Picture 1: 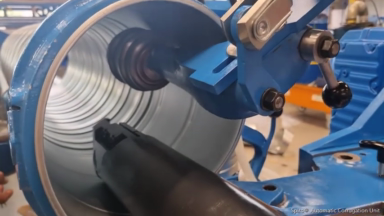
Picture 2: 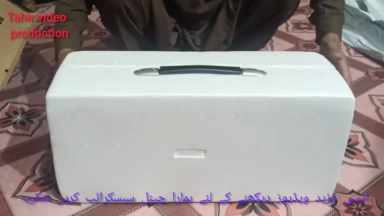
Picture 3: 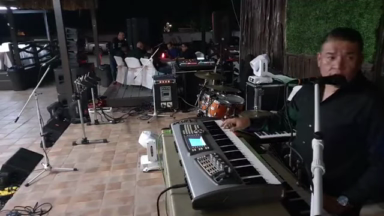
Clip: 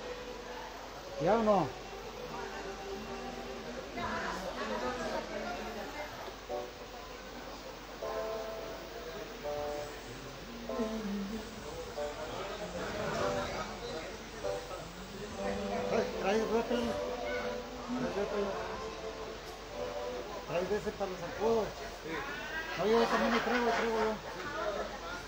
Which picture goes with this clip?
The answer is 3